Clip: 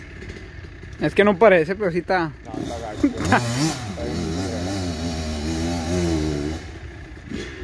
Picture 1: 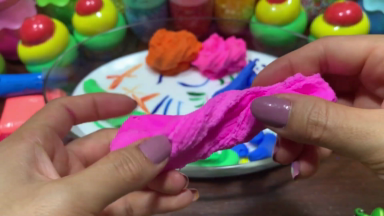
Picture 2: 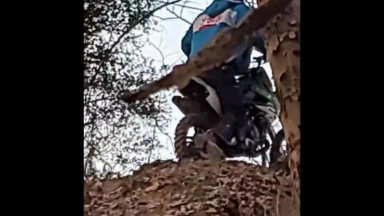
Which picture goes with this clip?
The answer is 2